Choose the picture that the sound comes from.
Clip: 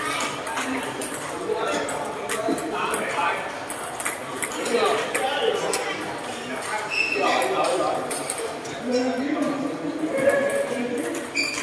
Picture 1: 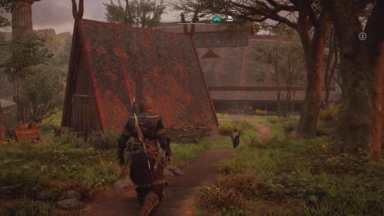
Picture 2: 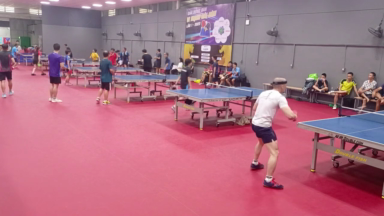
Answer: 2